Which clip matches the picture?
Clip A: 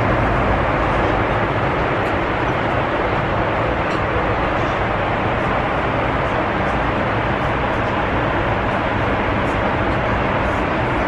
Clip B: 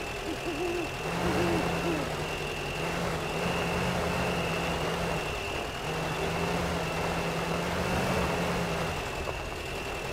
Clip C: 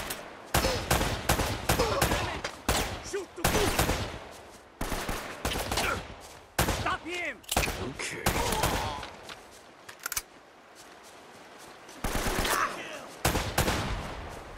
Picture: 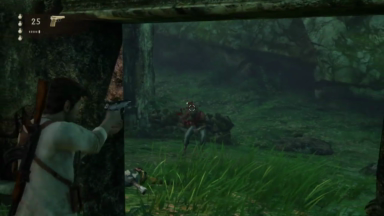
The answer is C